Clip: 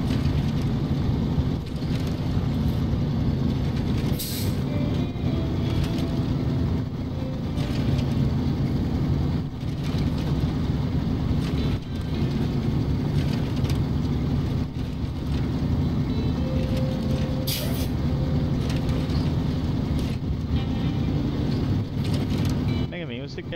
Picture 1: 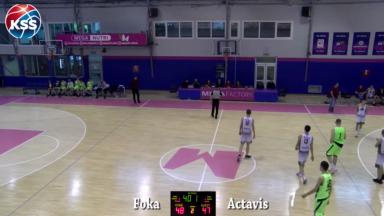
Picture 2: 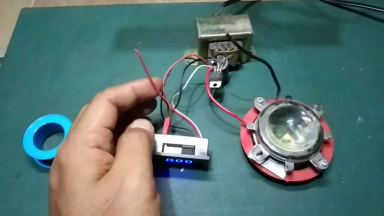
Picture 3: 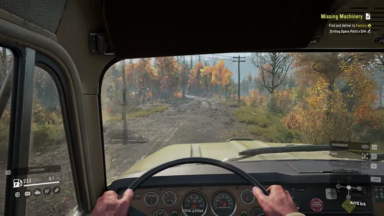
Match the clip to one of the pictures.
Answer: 3